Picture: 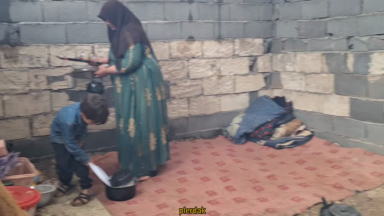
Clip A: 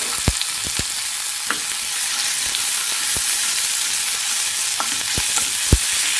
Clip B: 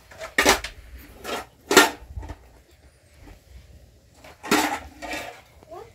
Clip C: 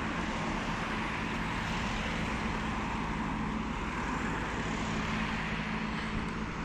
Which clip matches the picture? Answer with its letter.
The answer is B